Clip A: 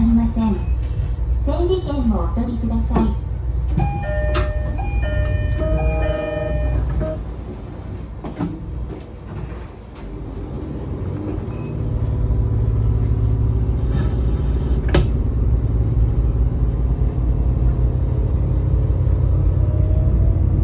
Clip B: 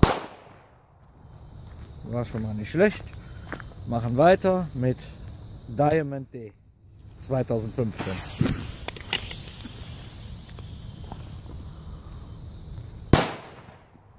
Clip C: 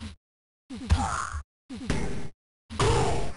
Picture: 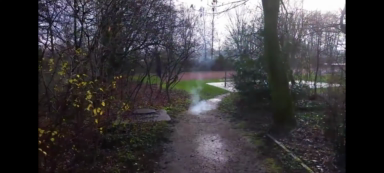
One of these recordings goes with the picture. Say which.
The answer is B